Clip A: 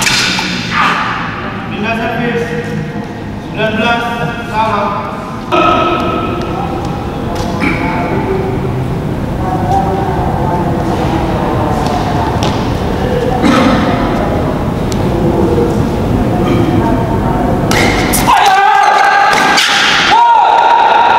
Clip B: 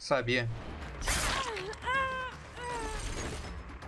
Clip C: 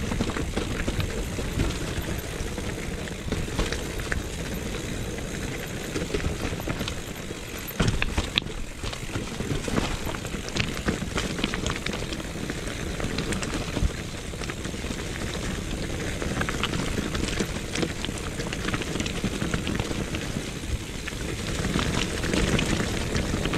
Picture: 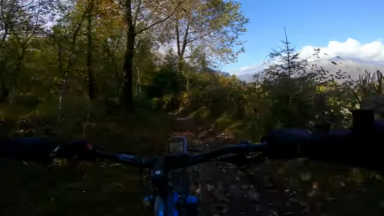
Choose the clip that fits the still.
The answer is C